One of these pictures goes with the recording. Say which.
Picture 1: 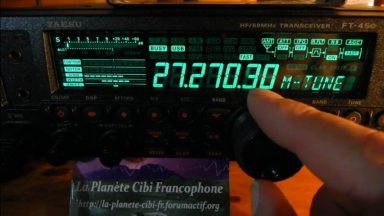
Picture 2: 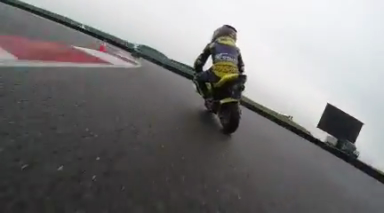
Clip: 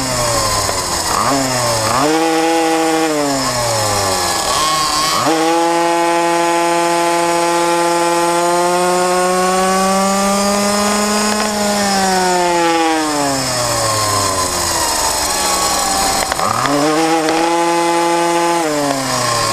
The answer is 2